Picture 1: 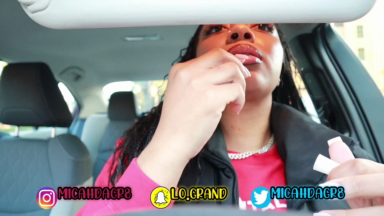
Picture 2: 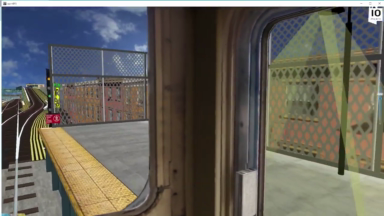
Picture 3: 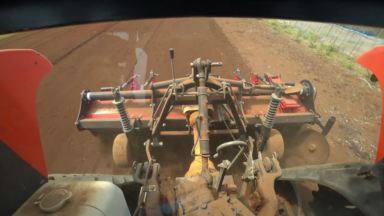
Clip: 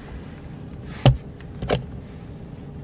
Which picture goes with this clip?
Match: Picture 1